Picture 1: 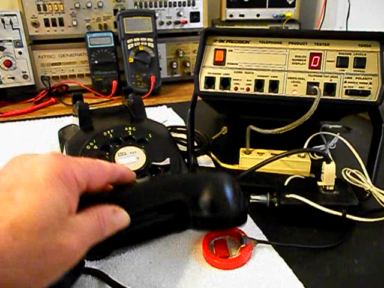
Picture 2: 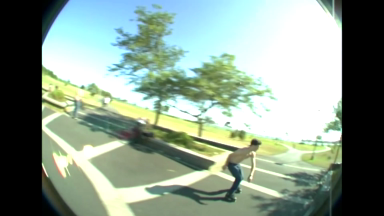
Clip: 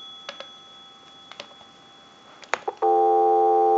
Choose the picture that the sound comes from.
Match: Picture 1